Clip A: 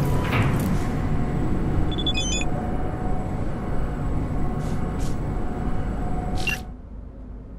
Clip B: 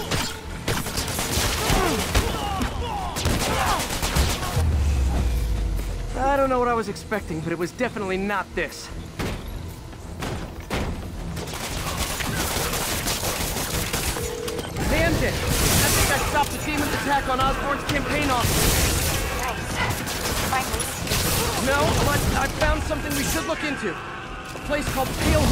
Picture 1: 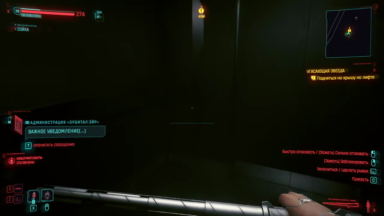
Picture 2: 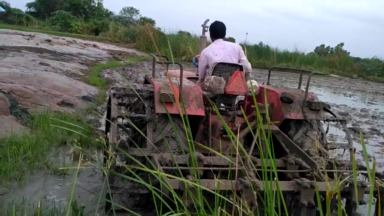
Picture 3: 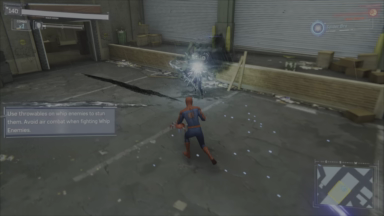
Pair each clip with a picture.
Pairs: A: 1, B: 3